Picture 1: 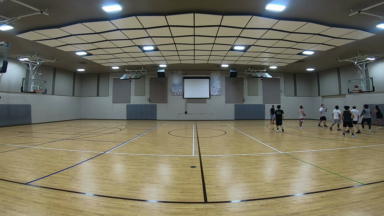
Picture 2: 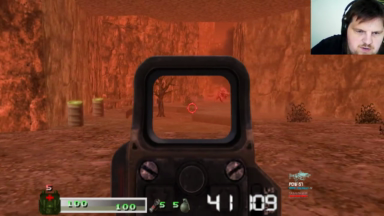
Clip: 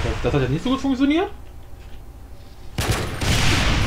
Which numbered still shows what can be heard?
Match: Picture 2